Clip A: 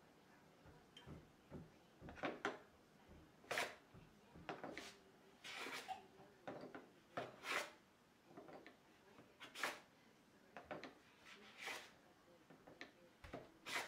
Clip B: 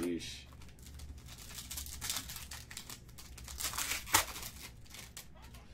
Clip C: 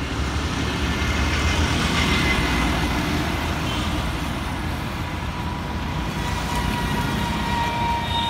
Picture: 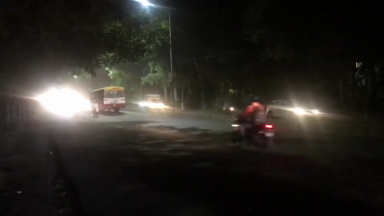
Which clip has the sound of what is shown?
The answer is C